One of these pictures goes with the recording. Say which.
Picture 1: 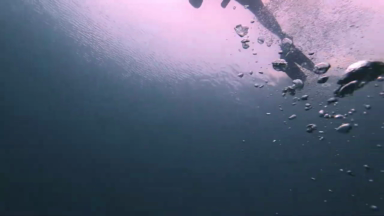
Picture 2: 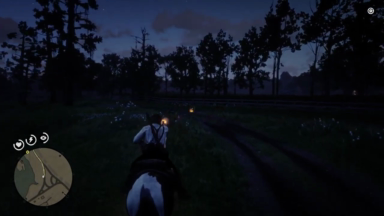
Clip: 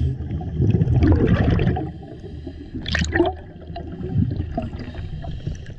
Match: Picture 1